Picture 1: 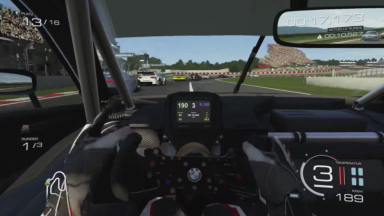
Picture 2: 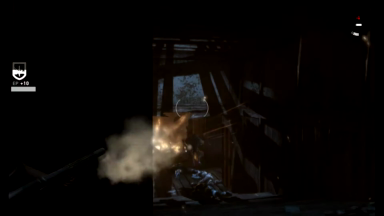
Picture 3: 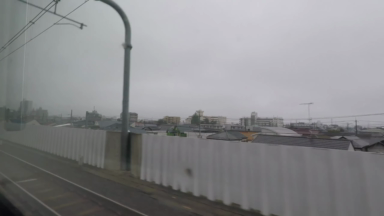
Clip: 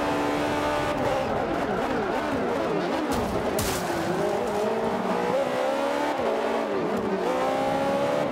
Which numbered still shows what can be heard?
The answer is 1